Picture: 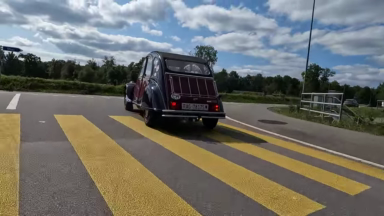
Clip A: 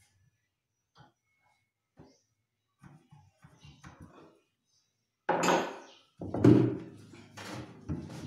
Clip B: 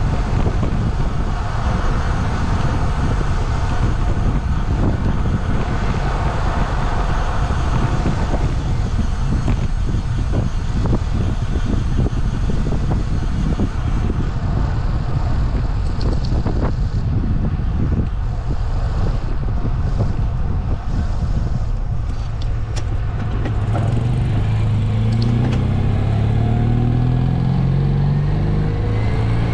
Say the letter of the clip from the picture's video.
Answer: B